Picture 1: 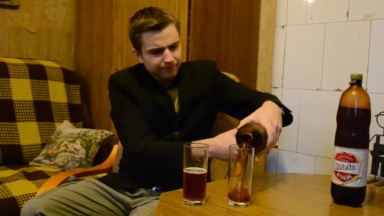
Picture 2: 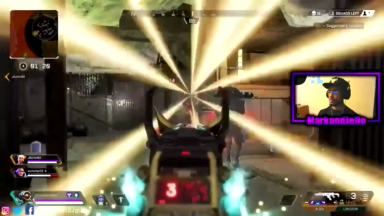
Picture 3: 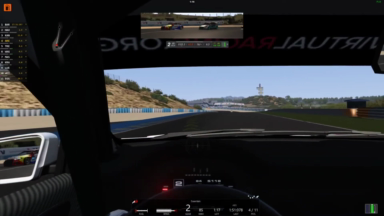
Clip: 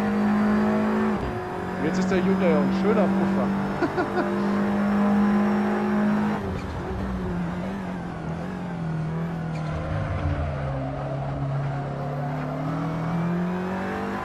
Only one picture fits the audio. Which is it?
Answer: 3